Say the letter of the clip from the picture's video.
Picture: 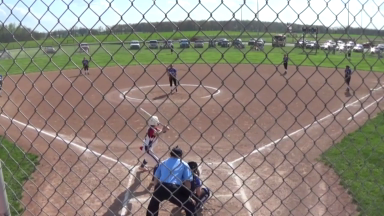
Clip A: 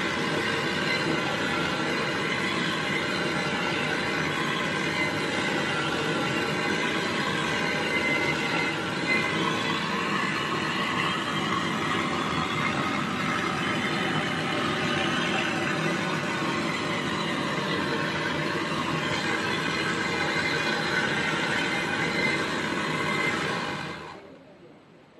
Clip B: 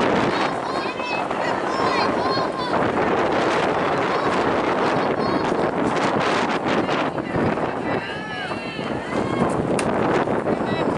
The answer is B